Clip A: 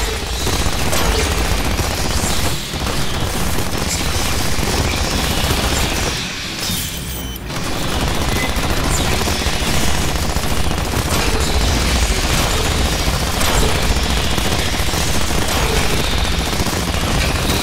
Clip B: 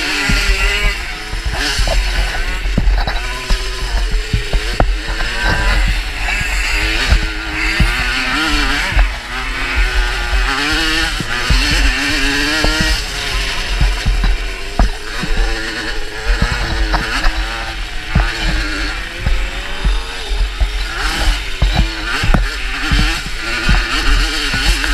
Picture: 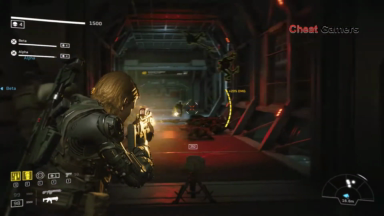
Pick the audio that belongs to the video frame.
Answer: A